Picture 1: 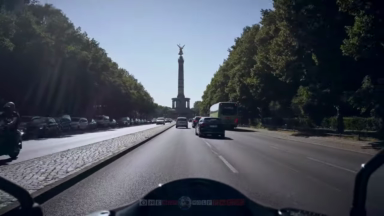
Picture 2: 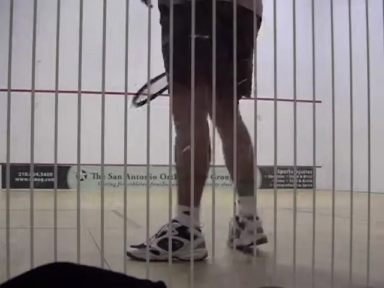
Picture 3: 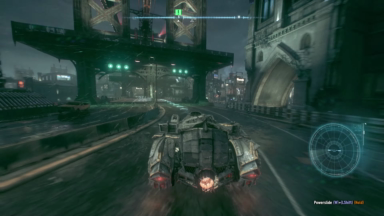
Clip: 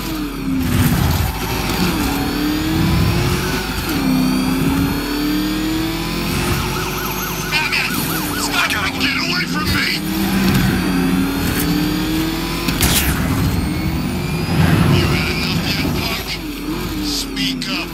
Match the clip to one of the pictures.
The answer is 3